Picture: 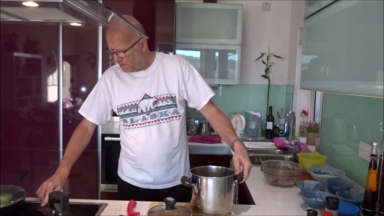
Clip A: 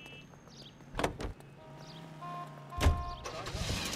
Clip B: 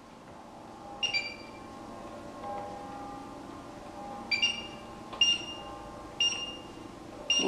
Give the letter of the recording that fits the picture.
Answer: B